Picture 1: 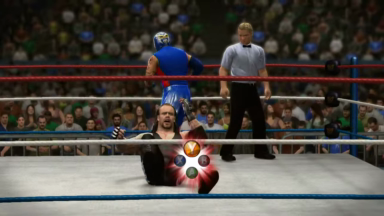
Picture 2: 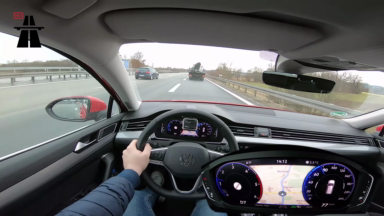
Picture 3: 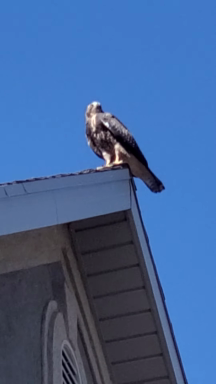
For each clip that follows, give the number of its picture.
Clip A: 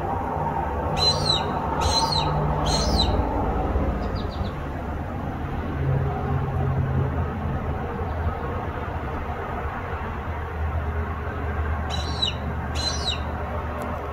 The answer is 3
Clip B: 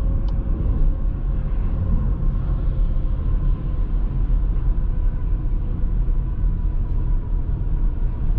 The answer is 2